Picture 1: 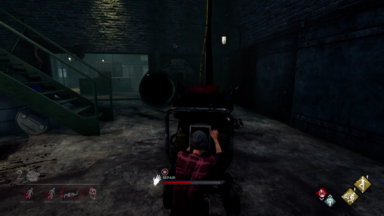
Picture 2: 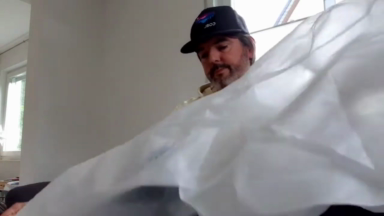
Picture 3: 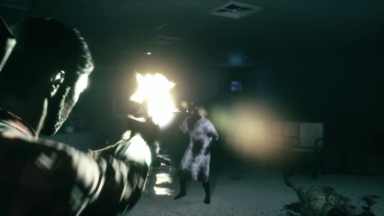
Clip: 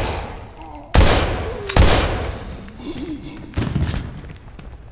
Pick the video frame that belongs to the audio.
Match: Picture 3